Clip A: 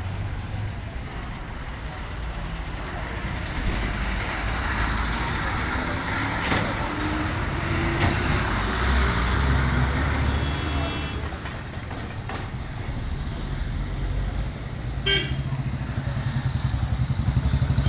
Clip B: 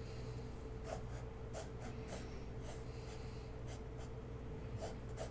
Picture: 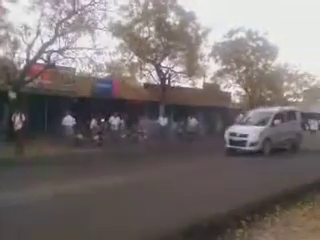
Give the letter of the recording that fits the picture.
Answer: A